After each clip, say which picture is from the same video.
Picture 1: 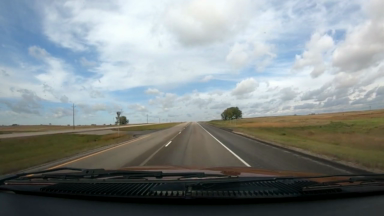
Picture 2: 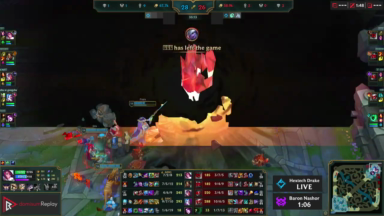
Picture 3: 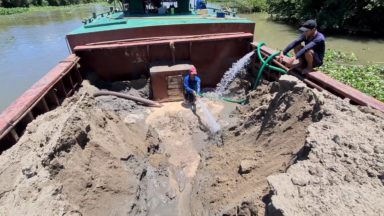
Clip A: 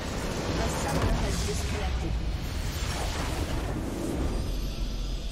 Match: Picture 2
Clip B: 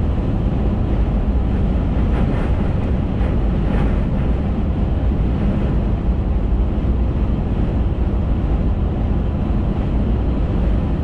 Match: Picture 1